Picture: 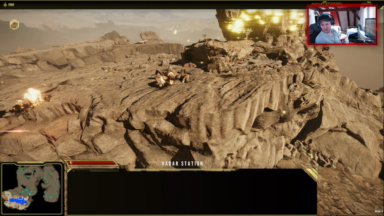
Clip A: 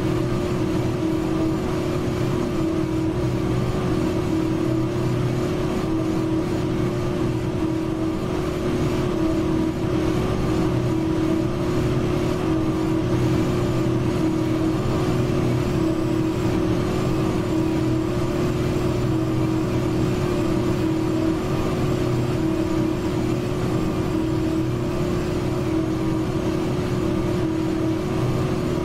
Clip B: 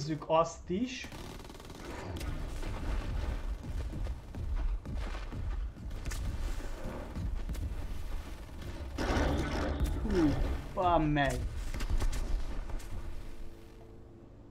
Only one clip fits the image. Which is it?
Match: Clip B